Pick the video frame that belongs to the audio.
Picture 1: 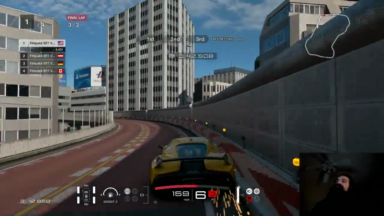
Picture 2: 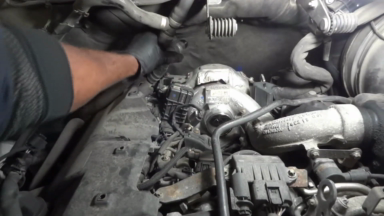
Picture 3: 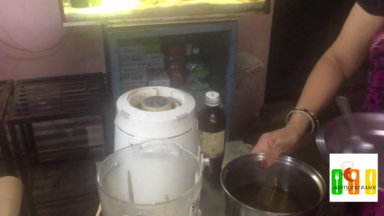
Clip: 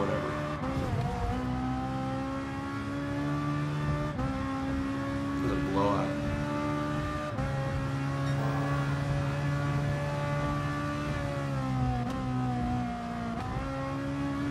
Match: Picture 1